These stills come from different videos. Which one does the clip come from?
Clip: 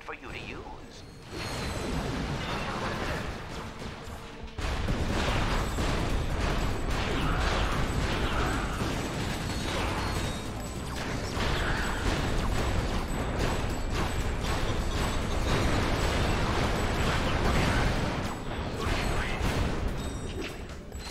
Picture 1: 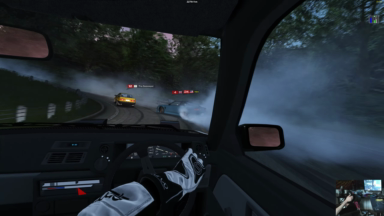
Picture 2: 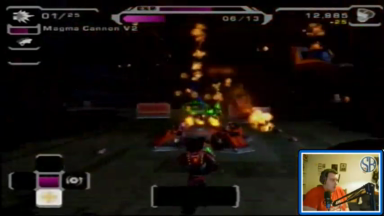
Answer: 2